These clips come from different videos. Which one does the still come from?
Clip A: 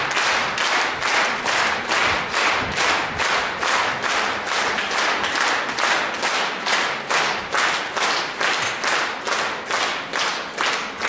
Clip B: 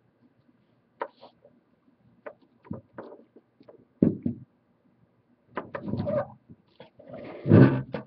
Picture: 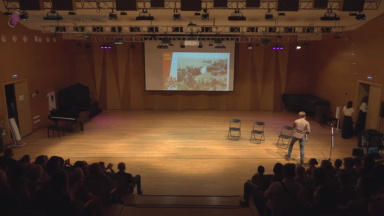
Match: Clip A